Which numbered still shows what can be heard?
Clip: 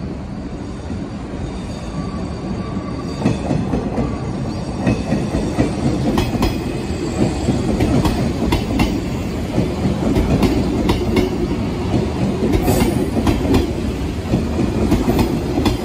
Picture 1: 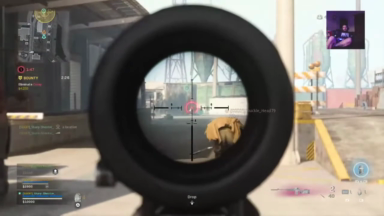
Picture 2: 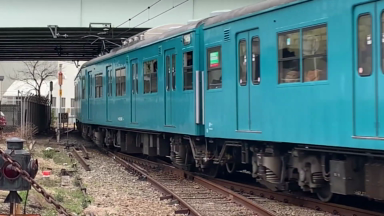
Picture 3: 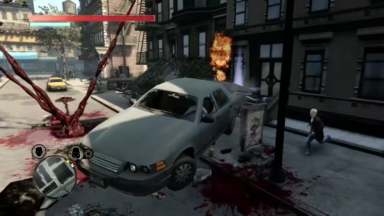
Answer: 2